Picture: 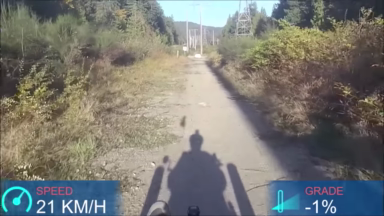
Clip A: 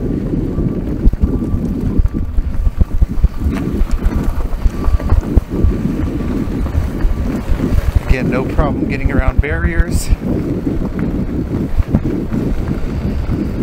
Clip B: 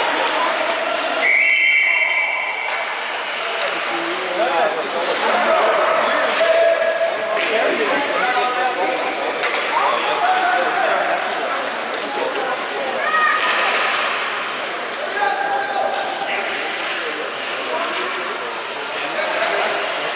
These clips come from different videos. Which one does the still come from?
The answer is A